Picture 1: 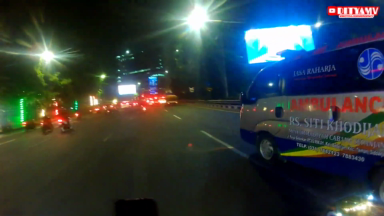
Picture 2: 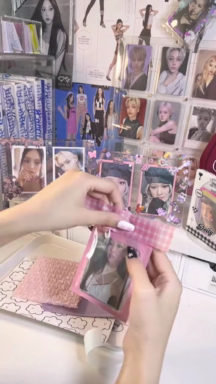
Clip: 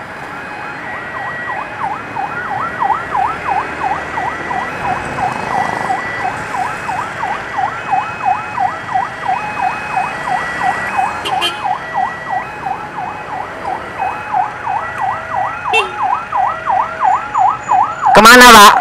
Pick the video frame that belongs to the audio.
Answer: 1